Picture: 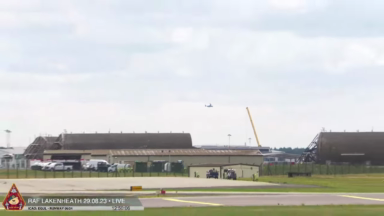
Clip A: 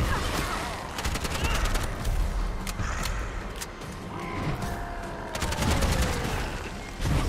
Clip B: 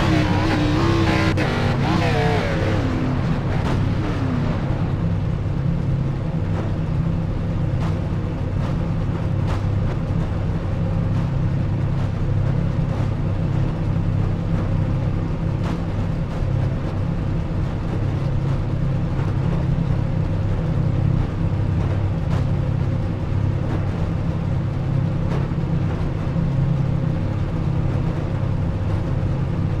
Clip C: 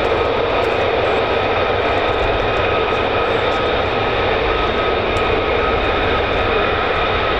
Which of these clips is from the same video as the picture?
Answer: C